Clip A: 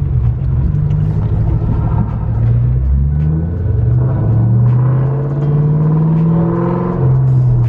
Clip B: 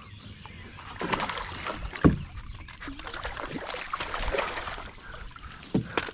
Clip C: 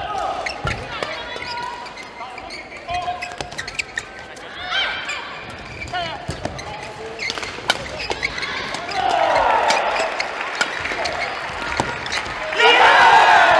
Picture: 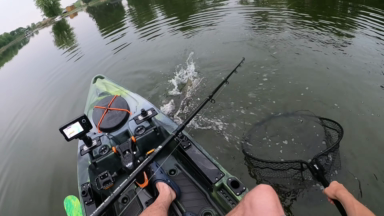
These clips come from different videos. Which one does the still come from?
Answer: B